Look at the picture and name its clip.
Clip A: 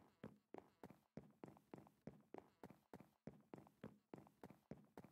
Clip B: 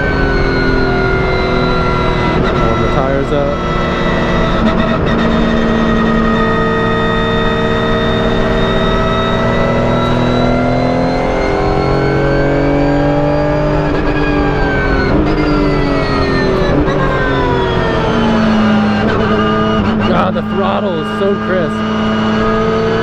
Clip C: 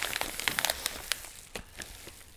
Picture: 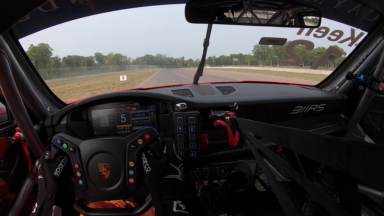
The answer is B